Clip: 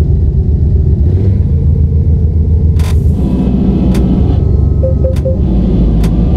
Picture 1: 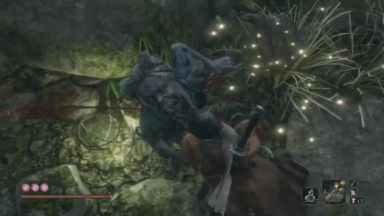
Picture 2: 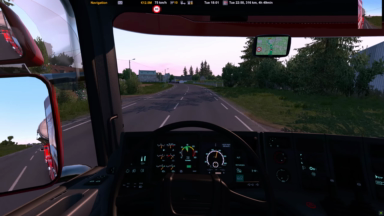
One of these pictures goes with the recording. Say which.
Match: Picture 2